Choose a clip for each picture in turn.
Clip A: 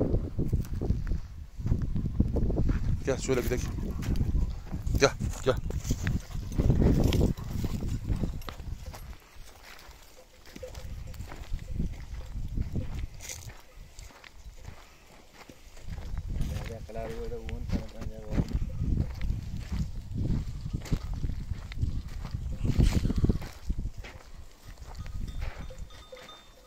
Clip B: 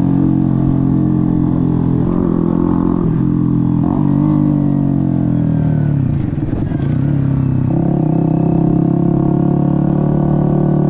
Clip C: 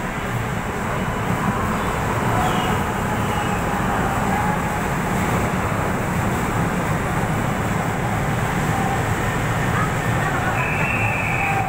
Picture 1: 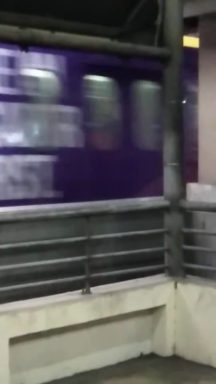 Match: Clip C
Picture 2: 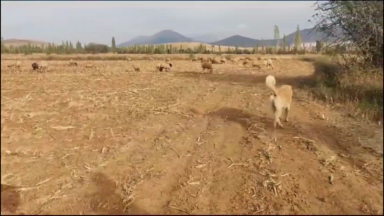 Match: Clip A